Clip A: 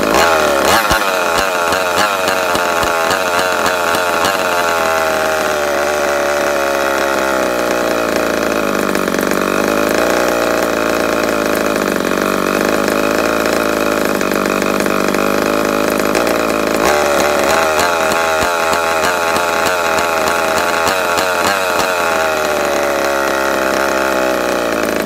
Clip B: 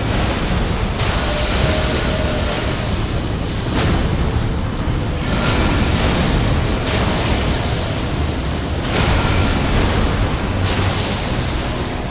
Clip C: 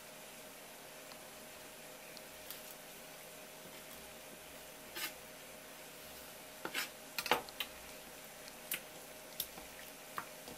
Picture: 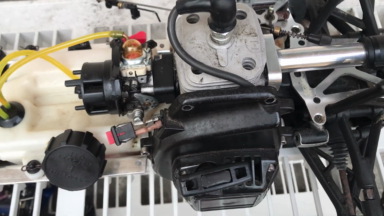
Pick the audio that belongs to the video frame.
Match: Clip A